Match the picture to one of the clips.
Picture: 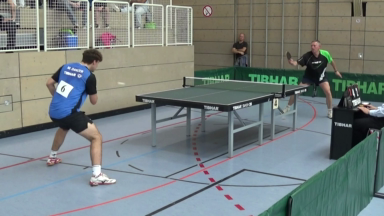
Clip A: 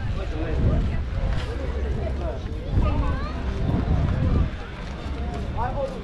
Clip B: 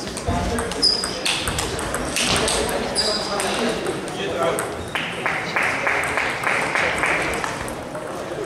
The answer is B